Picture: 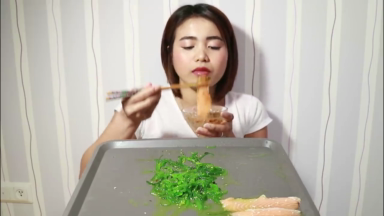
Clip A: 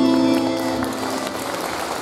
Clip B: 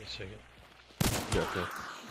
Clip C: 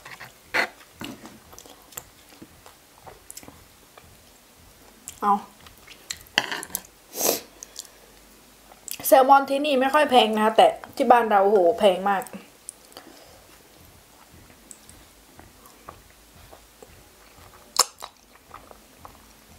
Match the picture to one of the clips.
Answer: C